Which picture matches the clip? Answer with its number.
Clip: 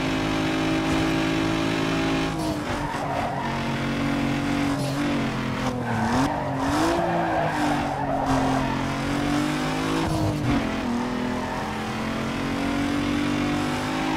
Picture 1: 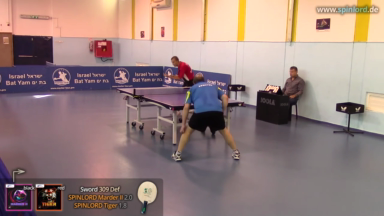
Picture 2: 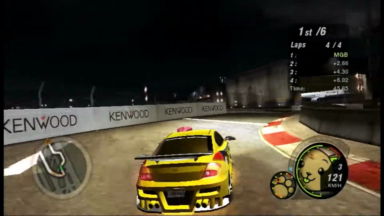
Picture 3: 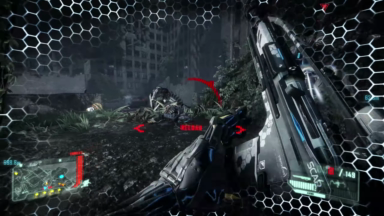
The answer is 2